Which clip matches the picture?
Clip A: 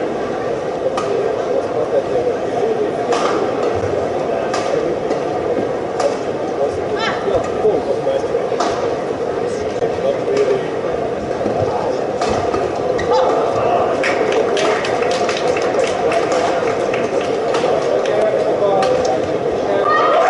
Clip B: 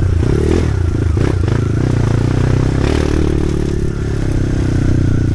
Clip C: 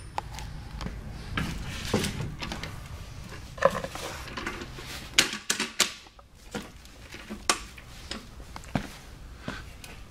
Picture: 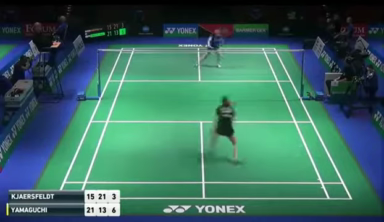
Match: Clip A